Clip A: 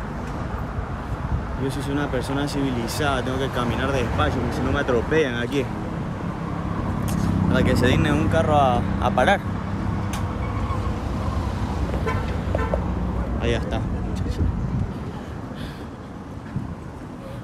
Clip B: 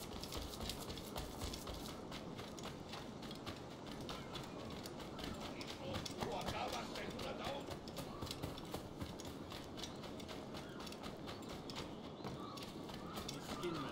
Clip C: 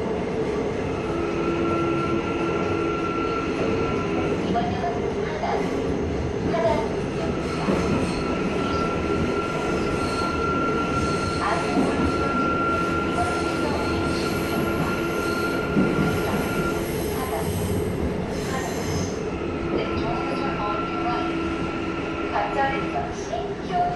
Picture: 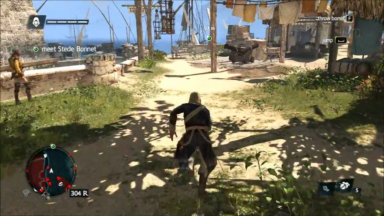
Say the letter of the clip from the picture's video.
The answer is B